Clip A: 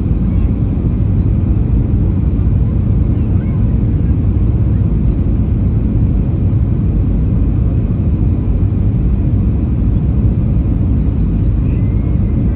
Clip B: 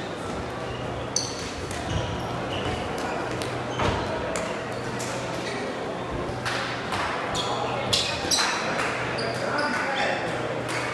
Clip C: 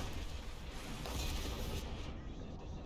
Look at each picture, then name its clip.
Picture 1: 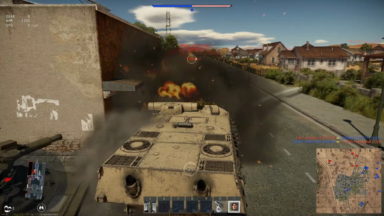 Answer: C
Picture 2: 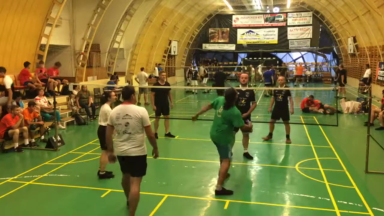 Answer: B